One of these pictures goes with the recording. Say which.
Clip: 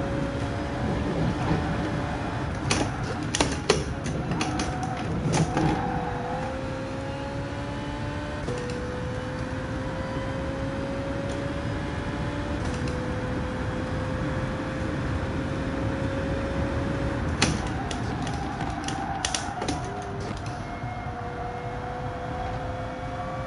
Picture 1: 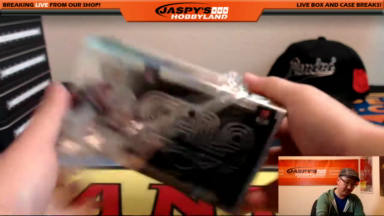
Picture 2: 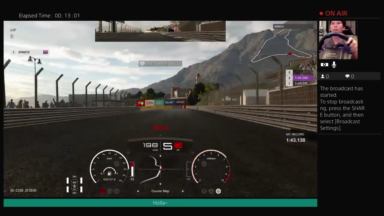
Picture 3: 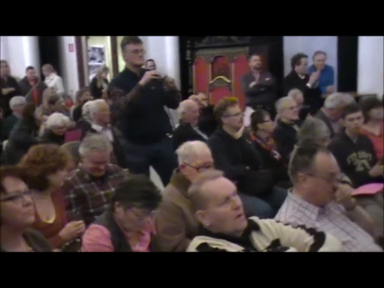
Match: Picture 2